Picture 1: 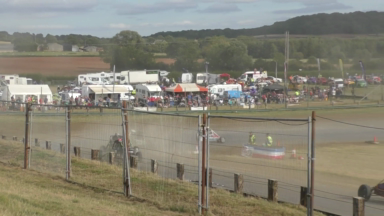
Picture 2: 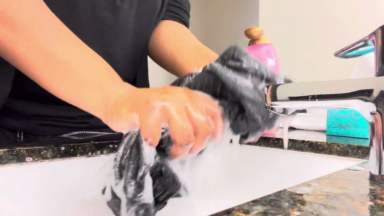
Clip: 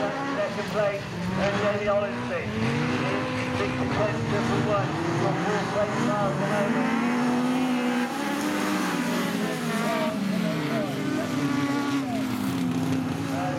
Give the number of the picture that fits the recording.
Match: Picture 1